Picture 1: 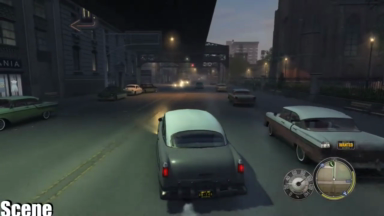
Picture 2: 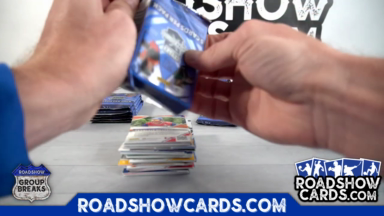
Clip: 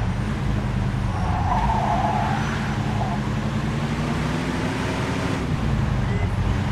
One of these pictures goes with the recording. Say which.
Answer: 1